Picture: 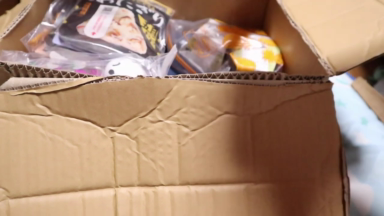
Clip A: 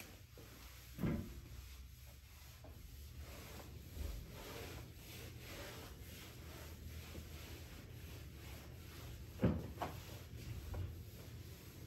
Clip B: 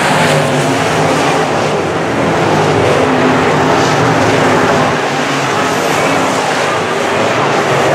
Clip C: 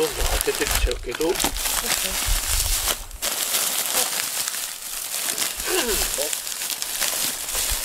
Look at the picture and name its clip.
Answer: C